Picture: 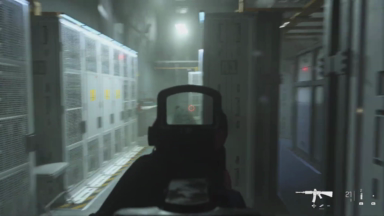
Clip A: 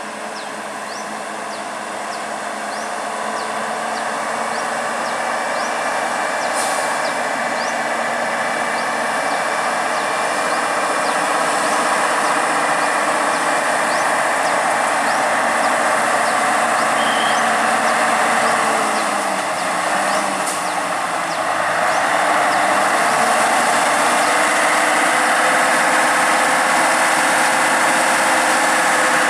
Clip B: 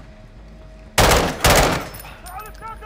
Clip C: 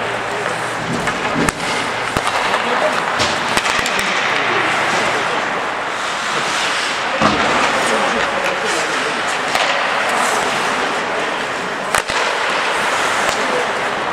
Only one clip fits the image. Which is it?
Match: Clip B